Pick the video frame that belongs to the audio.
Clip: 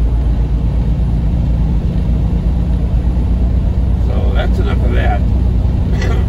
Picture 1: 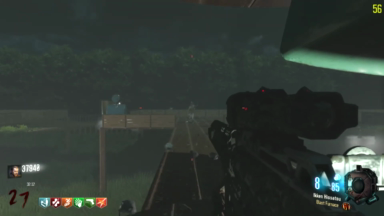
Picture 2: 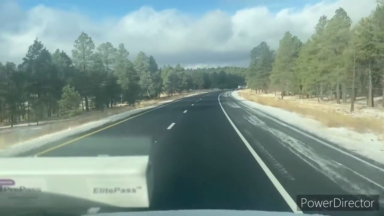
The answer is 2